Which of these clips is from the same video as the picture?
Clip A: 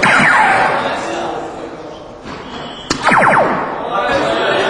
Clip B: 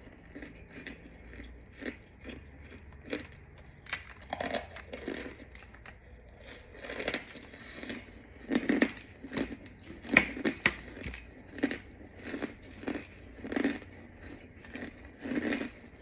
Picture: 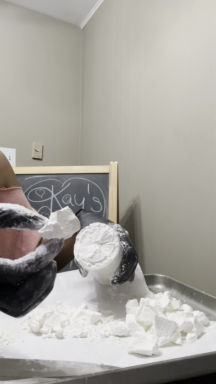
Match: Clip B